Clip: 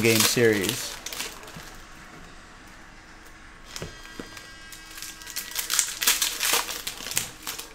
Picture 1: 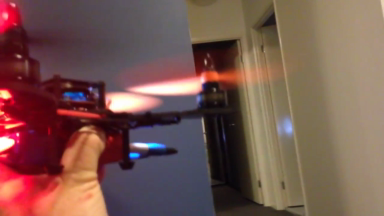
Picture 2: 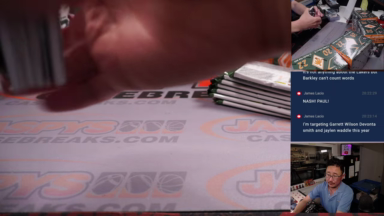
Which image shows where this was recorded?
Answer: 2